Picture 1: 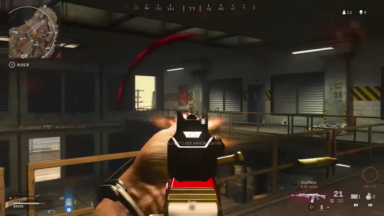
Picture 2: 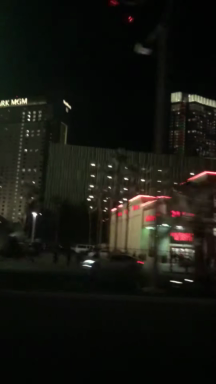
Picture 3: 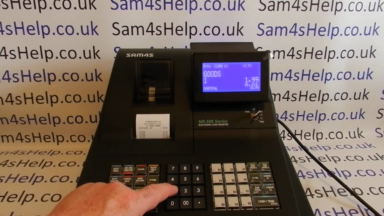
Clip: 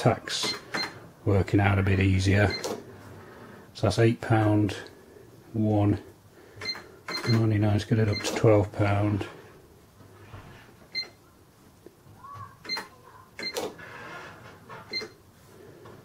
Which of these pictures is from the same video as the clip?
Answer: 3